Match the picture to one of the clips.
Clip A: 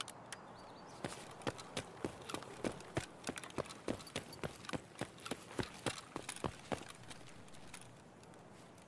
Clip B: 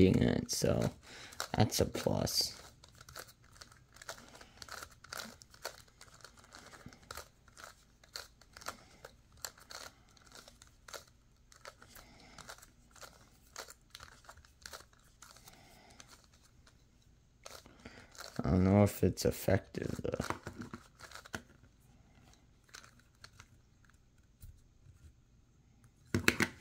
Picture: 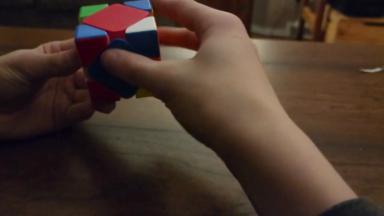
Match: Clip B